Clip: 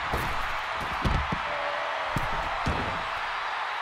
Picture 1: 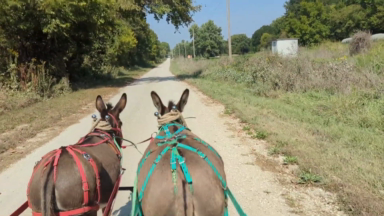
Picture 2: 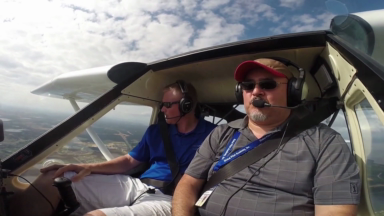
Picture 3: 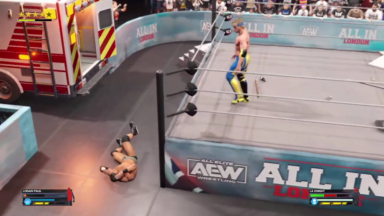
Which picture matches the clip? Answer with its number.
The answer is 3